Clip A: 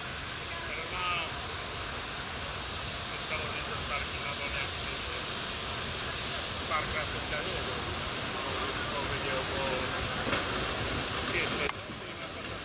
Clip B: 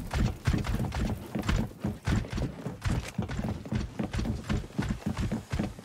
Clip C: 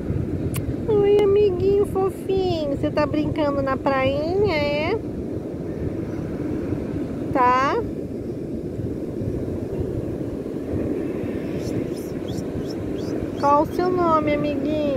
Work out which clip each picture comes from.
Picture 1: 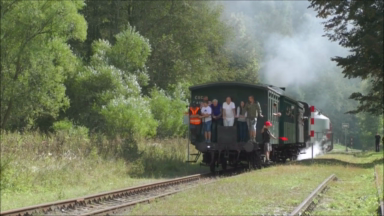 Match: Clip A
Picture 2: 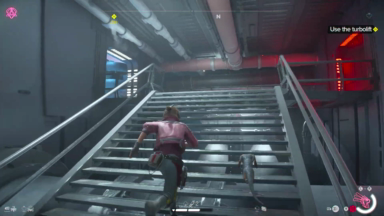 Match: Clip B